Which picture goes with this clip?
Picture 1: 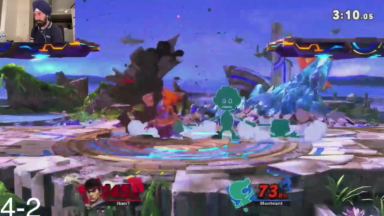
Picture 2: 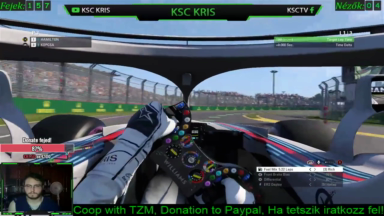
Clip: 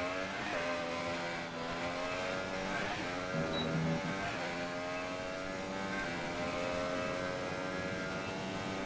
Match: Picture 2